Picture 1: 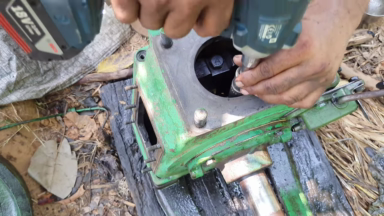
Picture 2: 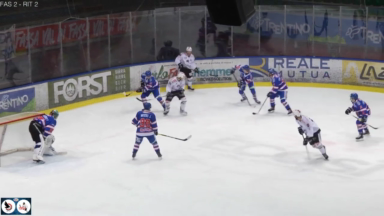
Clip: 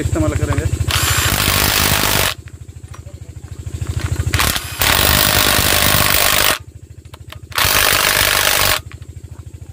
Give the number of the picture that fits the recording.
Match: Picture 1